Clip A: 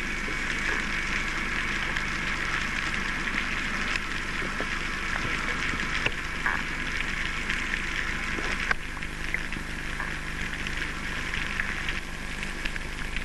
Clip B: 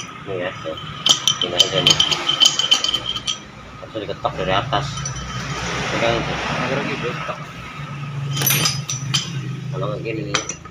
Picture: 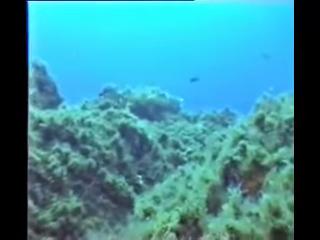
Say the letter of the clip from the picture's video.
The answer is A